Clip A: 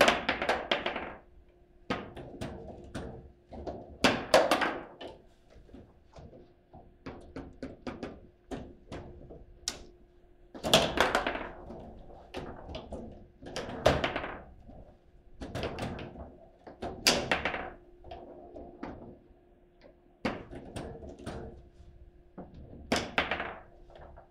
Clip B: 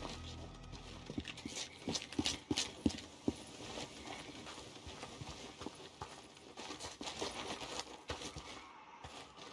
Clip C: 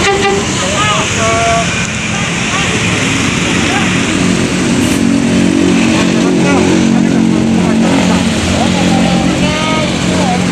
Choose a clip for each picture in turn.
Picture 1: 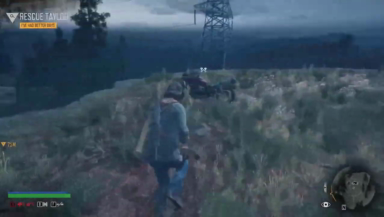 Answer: B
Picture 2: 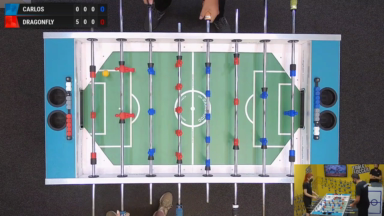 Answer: A